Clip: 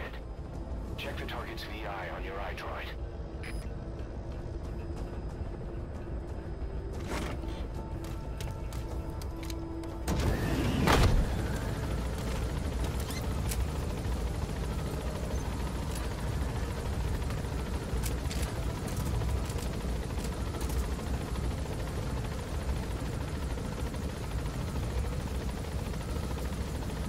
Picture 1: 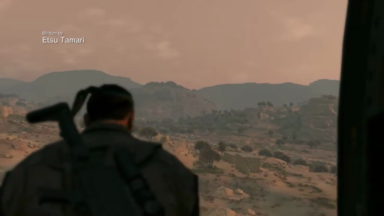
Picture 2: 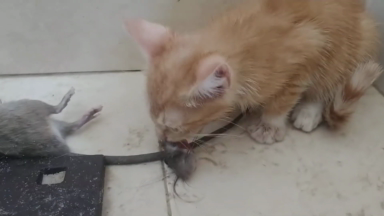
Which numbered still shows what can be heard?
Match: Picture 1